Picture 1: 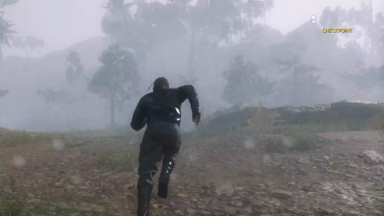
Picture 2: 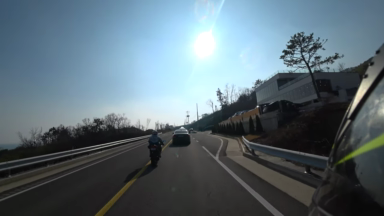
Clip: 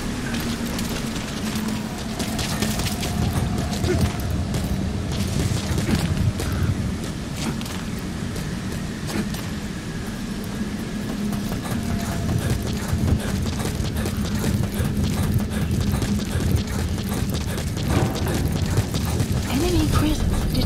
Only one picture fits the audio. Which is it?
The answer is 1